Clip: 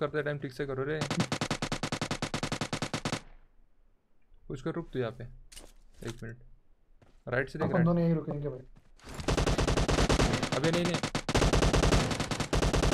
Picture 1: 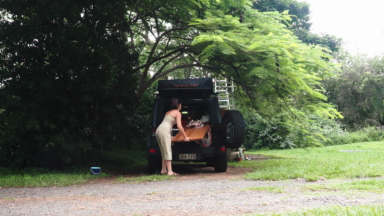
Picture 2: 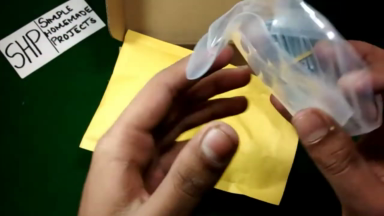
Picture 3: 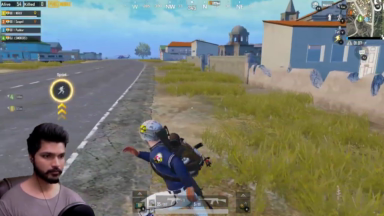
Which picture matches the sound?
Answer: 3